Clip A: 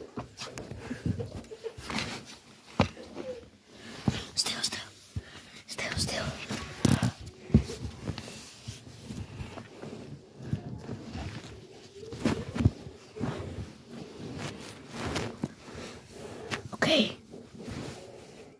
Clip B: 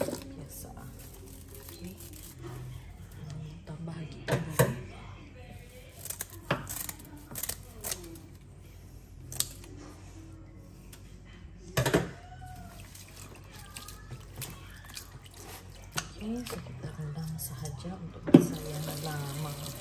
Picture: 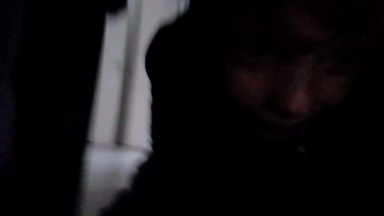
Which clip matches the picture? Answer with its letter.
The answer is A